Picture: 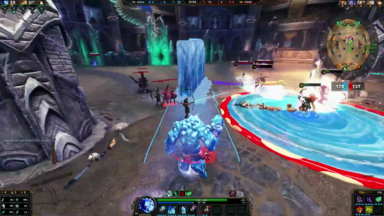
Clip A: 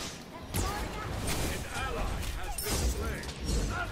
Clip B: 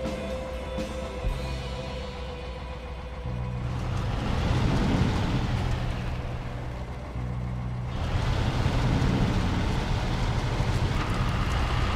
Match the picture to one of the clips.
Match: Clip A